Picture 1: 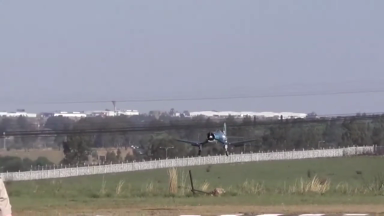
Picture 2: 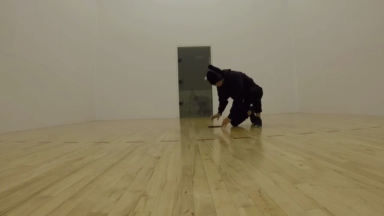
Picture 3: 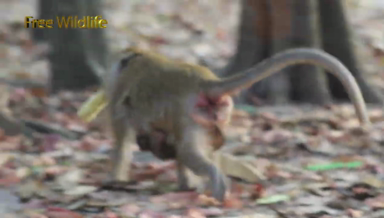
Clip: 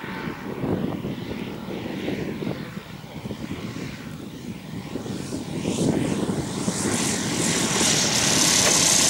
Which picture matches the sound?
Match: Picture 1